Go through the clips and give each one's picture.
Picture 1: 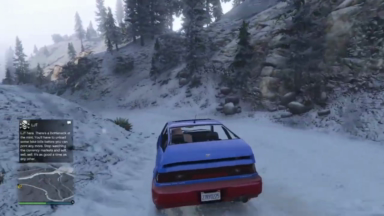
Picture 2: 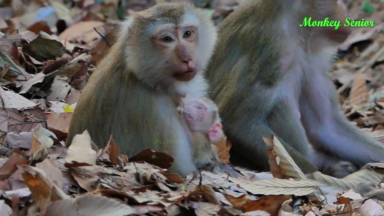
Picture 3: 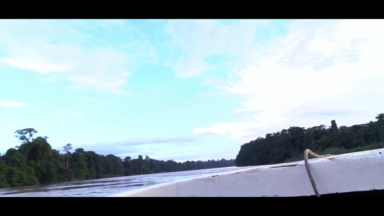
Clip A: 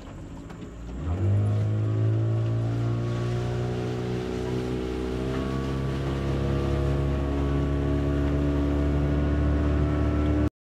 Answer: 3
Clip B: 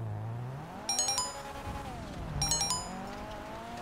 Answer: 1